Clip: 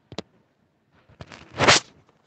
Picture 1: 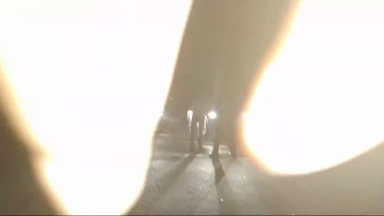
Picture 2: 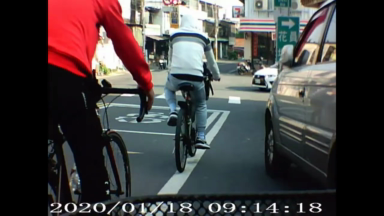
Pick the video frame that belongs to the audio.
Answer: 1